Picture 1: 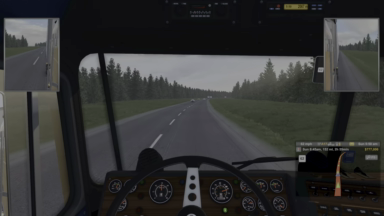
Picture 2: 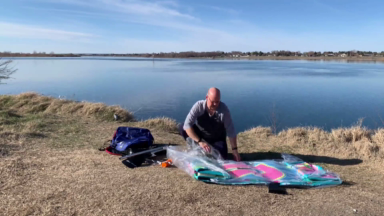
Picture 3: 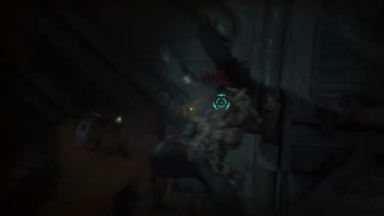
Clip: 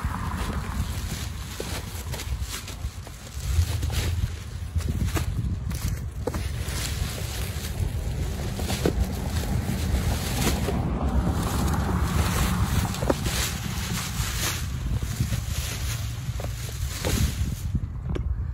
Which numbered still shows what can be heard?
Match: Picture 2